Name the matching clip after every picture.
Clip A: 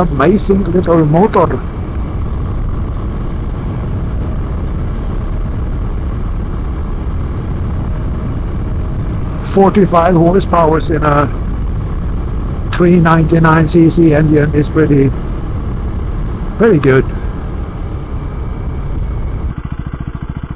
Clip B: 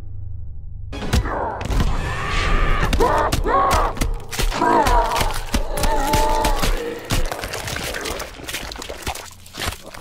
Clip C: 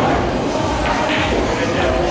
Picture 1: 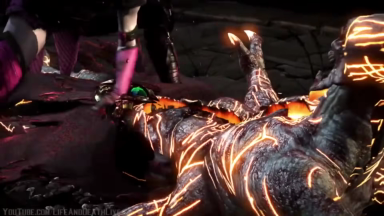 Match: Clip B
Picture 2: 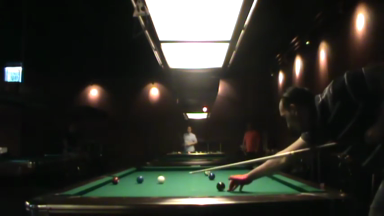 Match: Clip C